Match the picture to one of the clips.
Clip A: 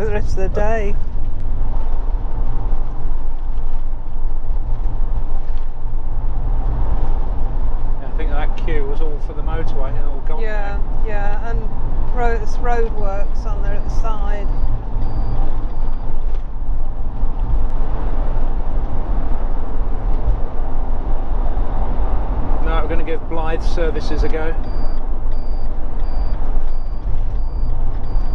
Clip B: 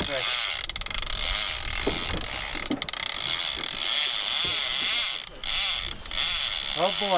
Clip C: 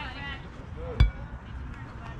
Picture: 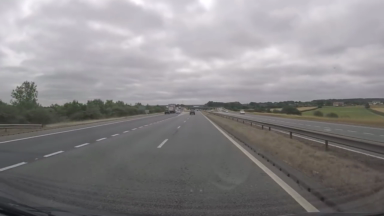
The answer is A